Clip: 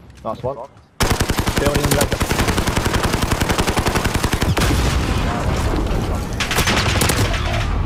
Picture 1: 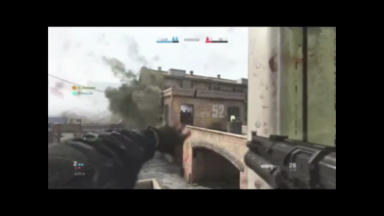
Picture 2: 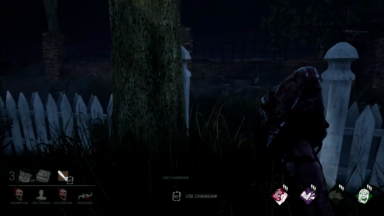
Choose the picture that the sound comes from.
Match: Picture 1